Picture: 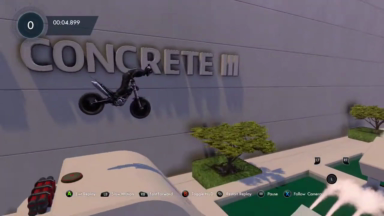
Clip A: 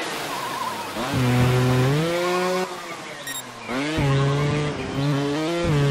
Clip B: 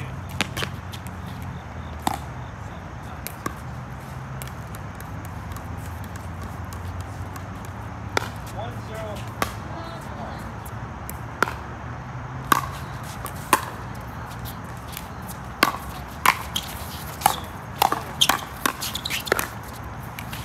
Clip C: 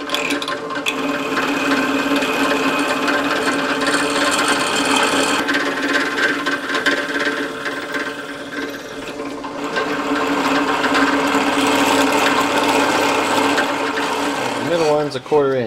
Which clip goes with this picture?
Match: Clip A